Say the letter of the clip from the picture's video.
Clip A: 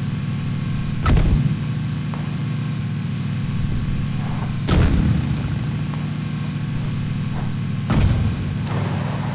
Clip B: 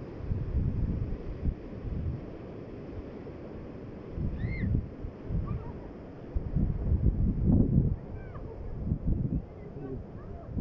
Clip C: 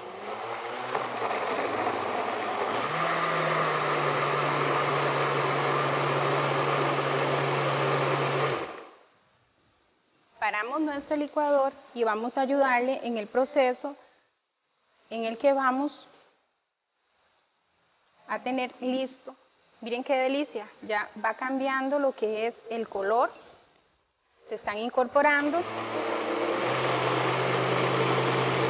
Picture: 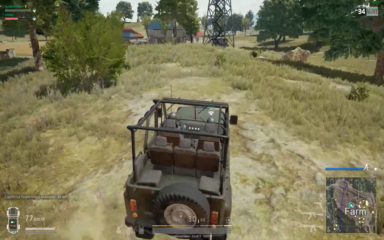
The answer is A